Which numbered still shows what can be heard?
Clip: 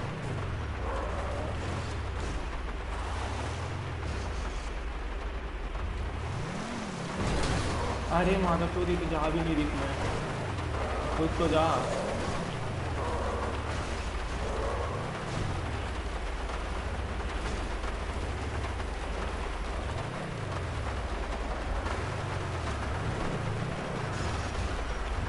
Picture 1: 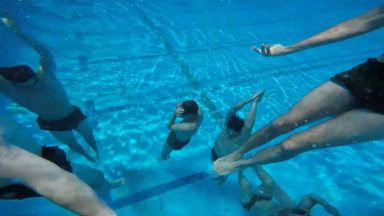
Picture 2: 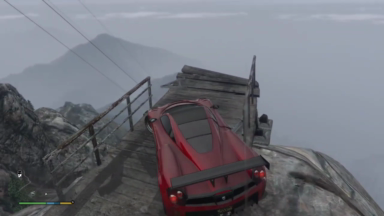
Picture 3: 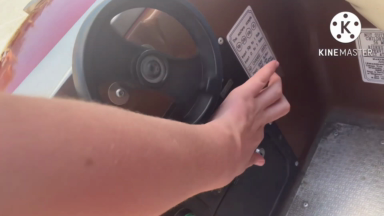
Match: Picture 2